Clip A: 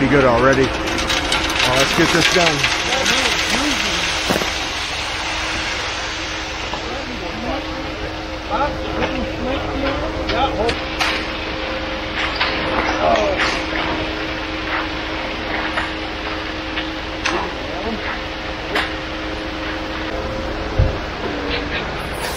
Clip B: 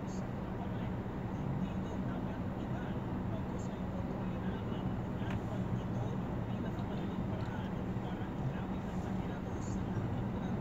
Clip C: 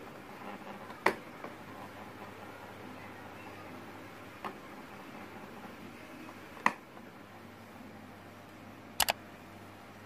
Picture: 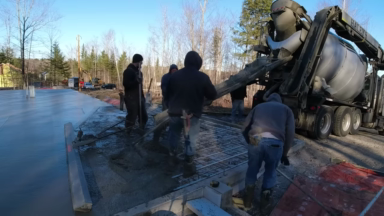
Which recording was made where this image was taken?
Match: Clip A